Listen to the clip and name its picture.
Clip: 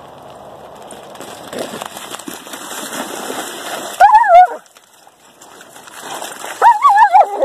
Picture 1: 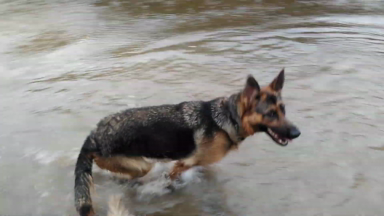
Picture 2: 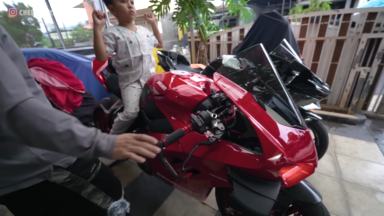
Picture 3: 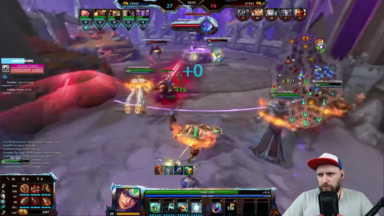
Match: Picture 1